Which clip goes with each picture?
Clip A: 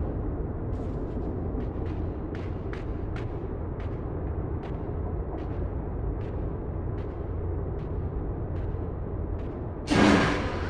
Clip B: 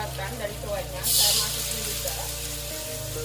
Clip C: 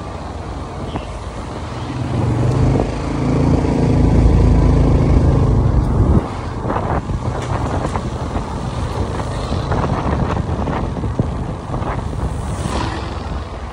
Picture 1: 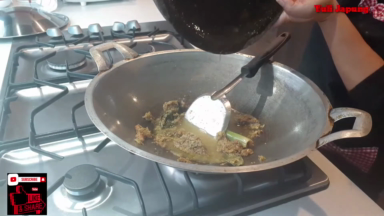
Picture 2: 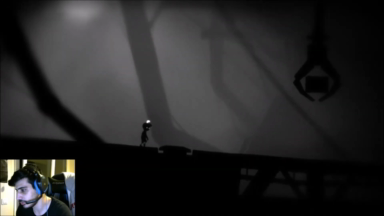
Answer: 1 B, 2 A